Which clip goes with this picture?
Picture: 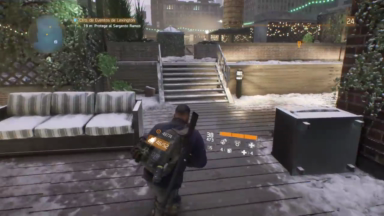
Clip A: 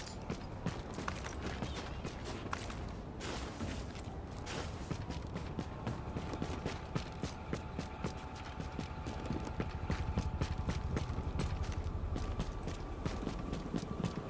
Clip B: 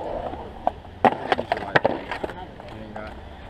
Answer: A